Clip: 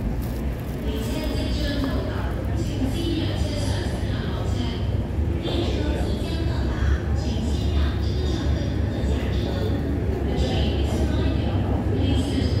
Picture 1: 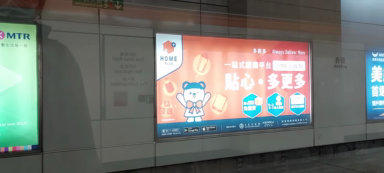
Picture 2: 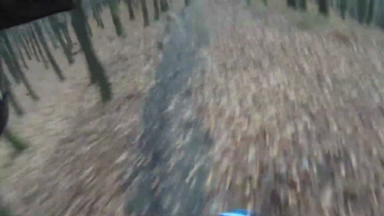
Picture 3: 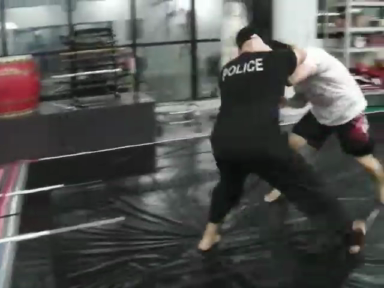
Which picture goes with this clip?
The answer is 1